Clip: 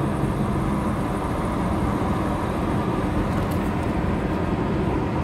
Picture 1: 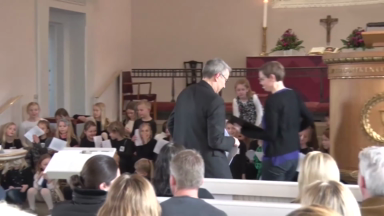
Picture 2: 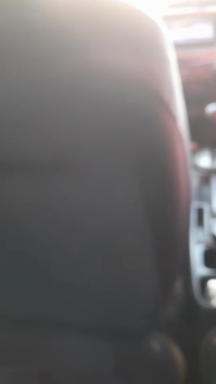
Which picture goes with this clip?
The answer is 2